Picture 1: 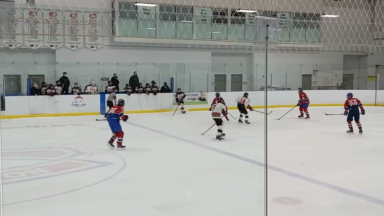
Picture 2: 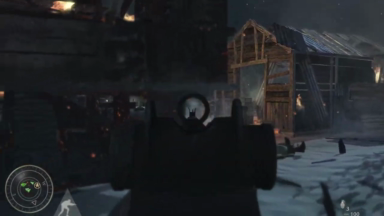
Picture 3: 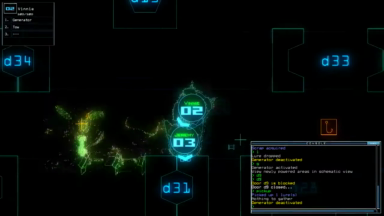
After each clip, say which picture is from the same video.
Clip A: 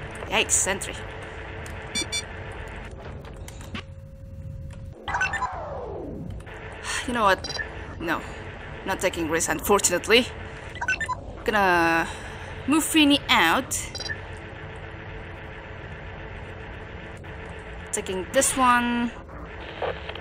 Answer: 3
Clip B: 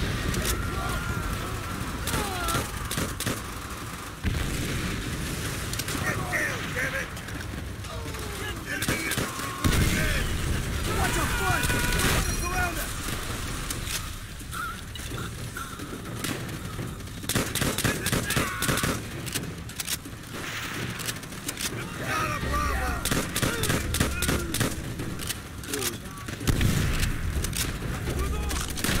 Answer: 2